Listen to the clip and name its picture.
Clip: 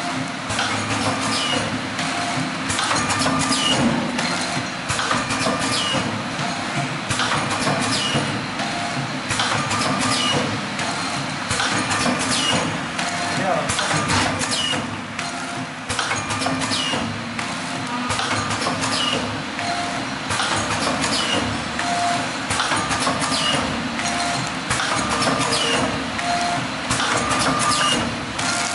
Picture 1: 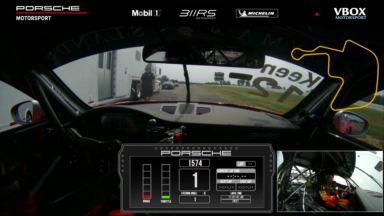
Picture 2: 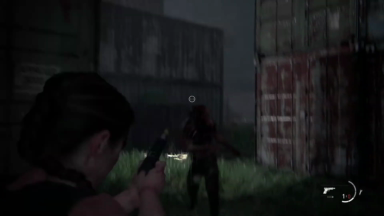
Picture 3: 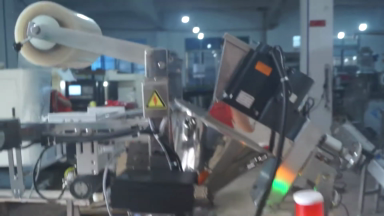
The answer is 3